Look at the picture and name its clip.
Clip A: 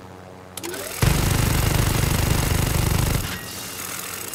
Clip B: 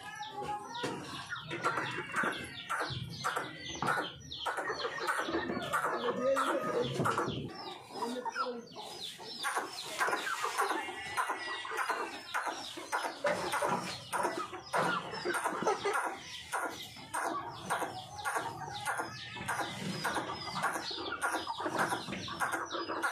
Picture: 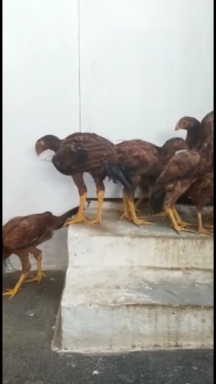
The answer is B